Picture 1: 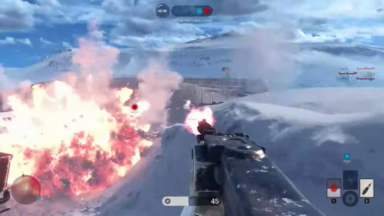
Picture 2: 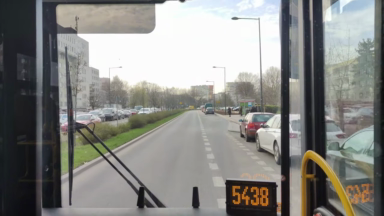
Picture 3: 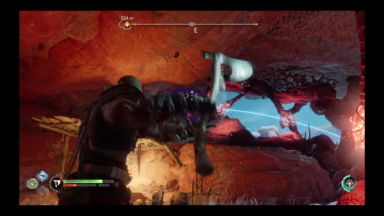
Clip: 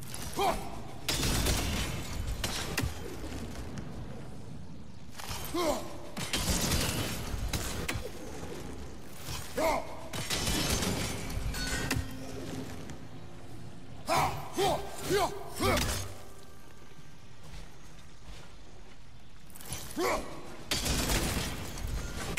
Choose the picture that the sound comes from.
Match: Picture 3